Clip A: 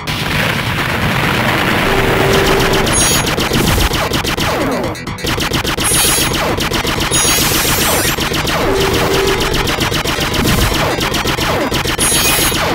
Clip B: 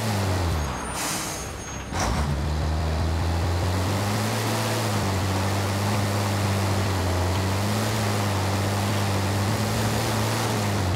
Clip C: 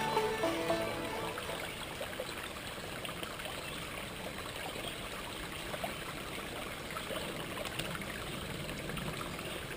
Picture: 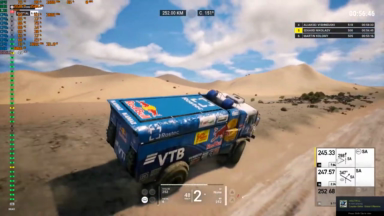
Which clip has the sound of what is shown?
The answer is B